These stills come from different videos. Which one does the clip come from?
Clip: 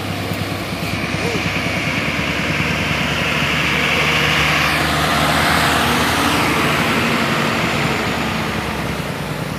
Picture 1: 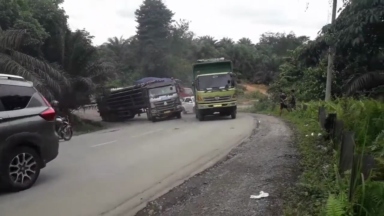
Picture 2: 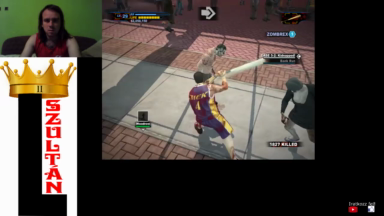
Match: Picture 1